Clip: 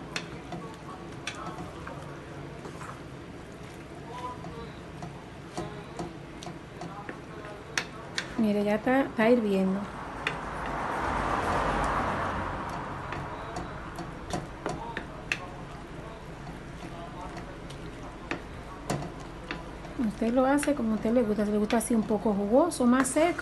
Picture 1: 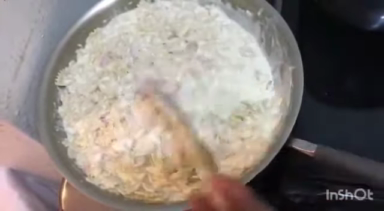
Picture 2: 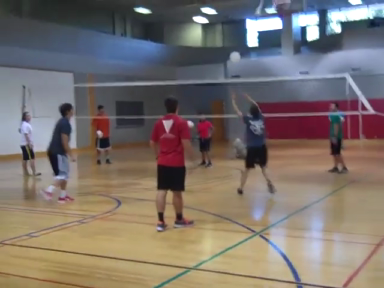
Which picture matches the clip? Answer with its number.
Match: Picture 1